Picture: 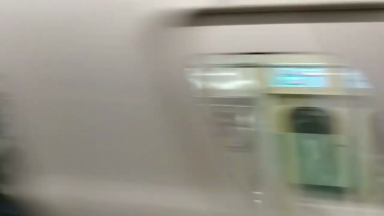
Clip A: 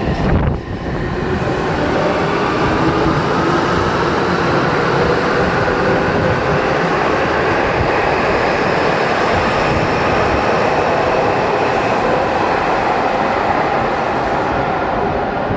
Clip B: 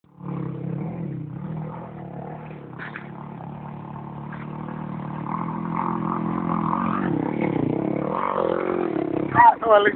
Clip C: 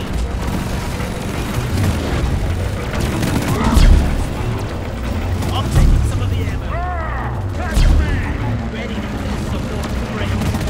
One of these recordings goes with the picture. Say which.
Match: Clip A